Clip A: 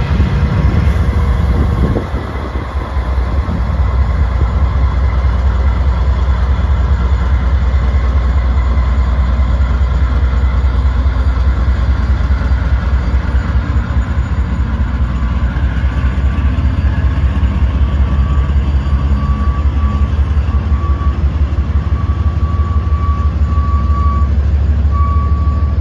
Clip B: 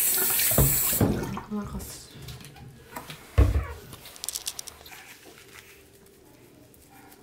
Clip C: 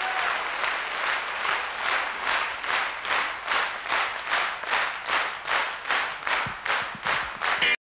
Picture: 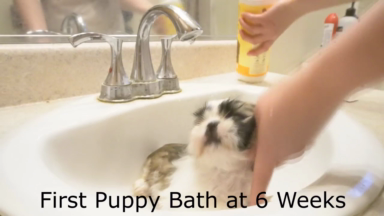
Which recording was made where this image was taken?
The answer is B